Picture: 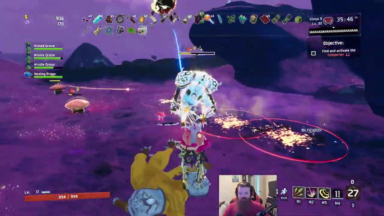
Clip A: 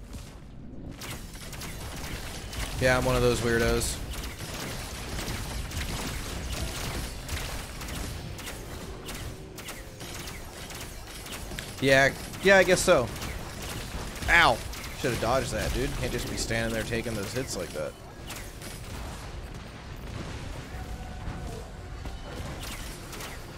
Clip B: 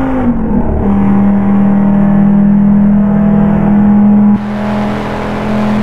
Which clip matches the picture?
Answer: A